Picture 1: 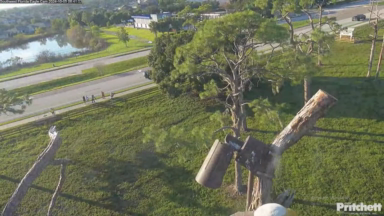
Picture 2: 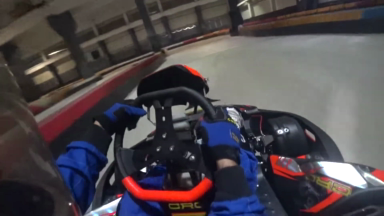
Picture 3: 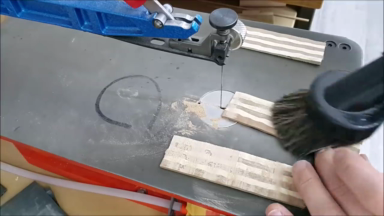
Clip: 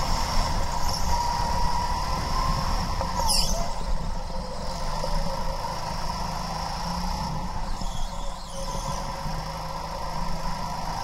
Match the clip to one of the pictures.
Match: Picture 2